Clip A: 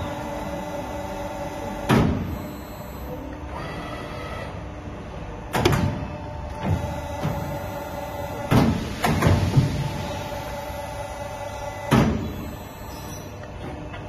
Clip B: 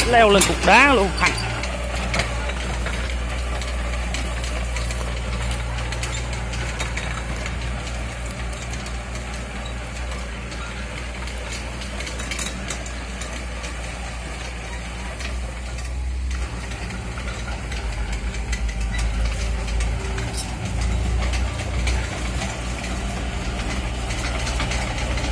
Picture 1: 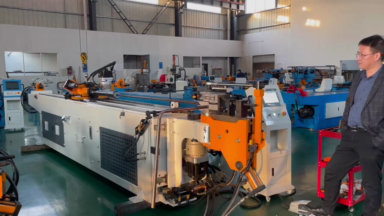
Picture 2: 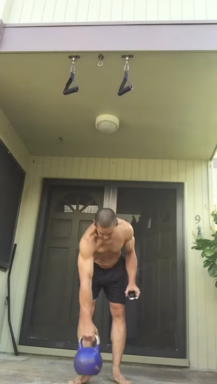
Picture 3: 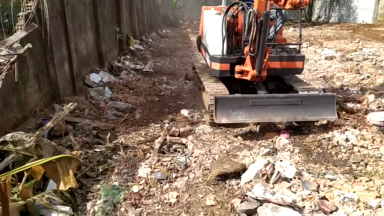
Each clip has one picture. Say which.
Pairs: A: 1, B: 3